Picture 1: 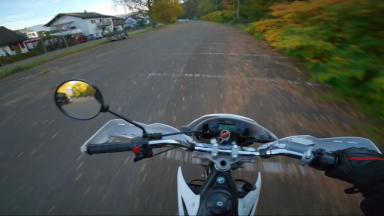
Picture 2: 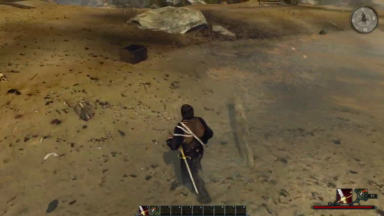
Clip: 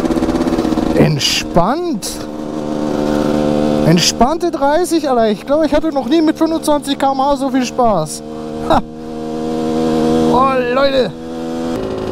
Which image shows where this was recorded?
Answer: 1